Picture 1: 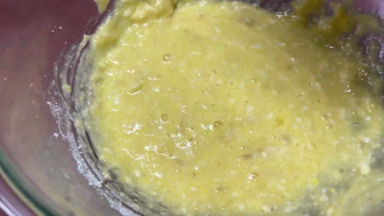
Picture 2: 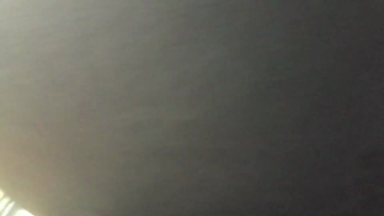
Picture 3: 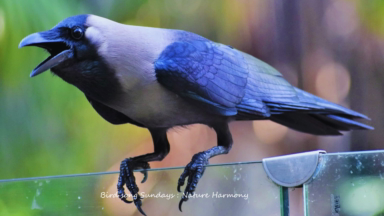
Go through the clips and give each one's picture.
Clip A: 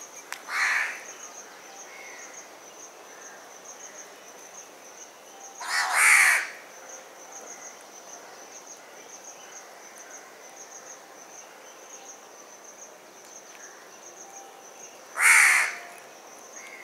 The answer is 3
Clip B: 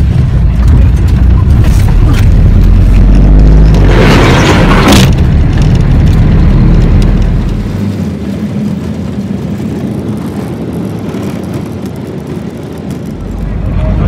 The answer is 2